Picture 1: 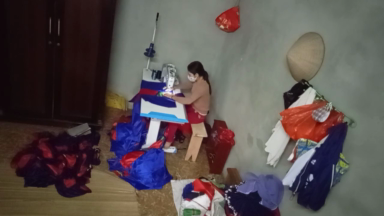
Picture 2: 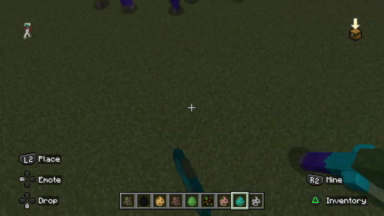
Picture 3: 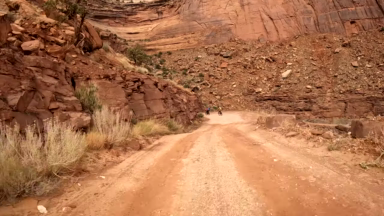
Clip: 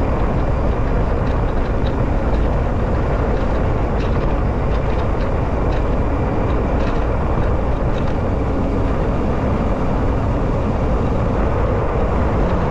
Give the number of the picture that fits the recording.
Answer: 3